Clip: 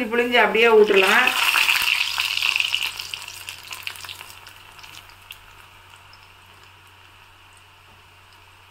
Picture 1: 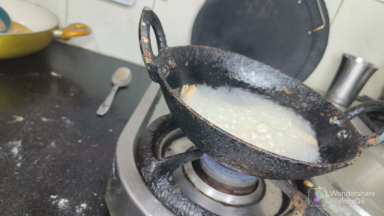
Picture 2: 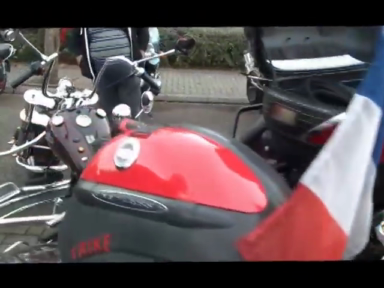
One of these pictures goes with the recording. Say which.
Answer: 1